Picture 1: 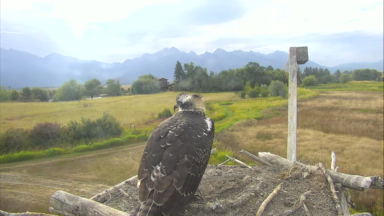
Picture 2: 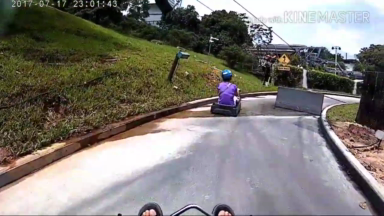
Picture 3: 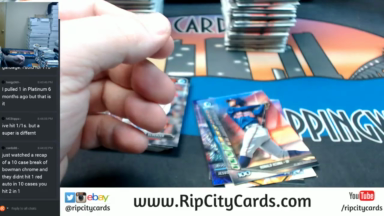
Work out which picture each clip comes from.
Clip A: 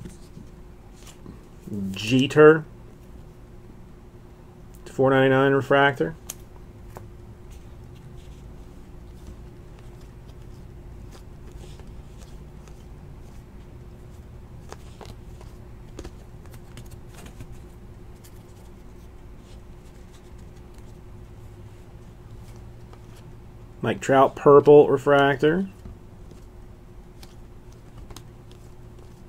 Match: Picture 3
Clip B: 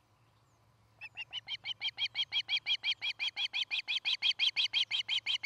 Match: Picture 1